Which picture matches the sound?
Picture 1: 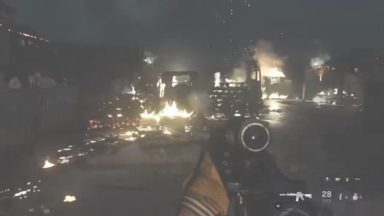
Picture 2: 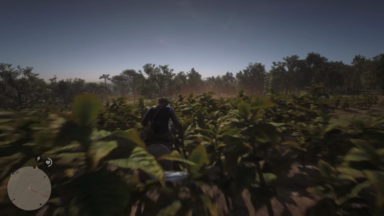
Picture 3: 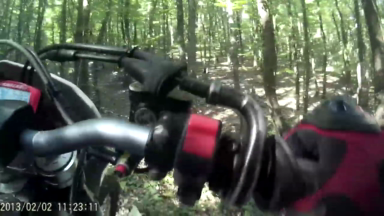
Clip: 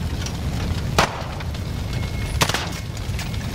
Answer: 1